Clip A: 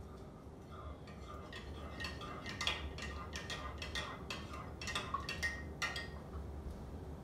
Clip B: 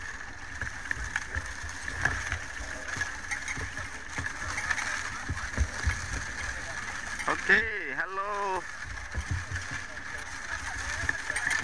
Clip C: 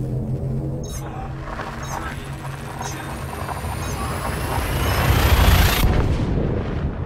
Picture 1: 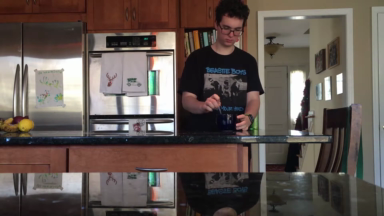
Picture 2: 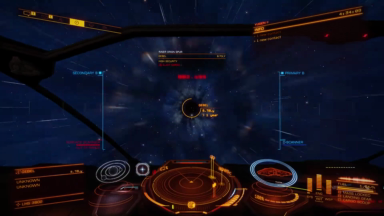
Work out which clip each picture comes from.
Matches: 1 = A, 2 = C